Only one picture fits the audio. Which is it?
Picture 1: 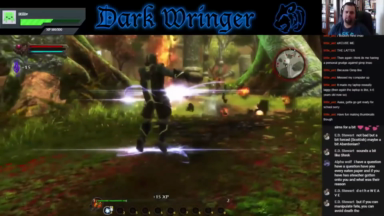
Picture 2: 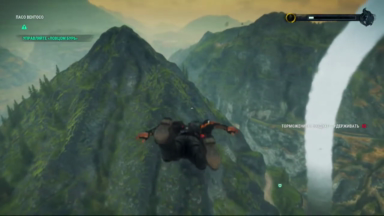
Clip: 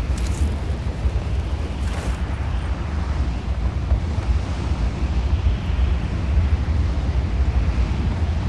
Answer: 2